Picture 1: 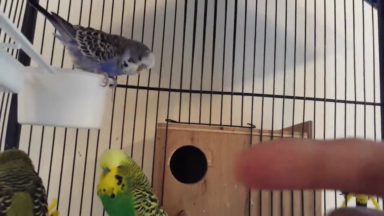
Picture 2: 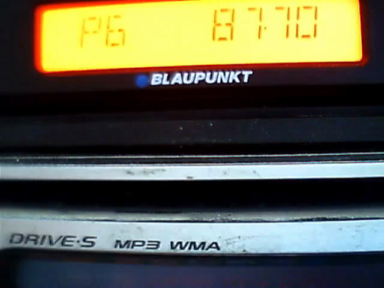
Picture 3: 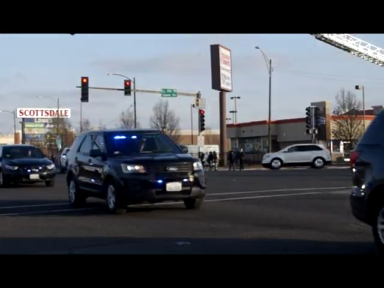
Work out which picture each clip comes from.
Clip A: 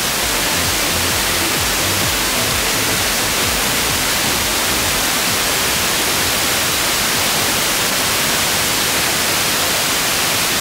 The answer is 2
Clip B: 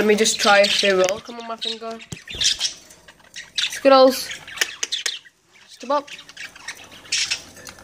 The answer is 1